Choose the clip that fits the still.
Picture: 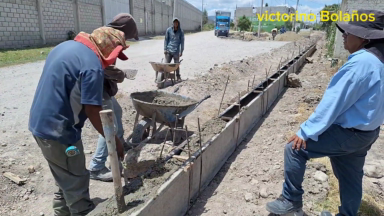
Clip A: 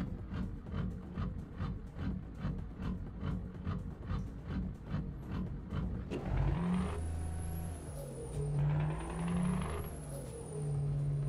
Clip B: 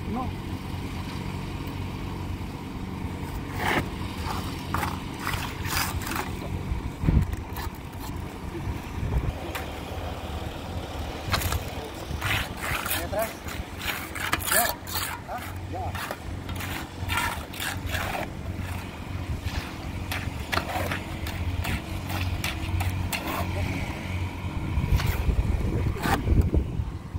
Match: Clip B